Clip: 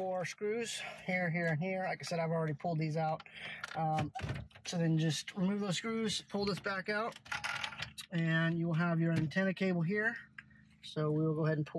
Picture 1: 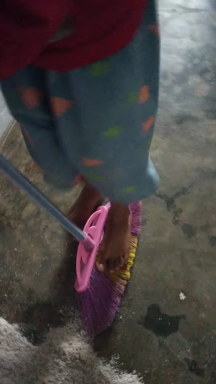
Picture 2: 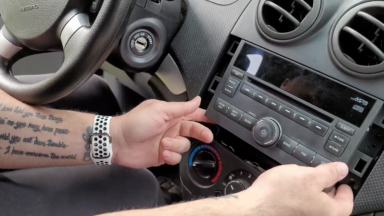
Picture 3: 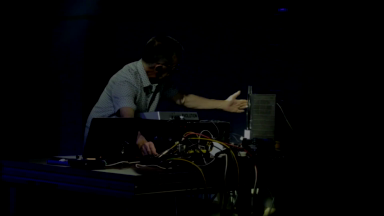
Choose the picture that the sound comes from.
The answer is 2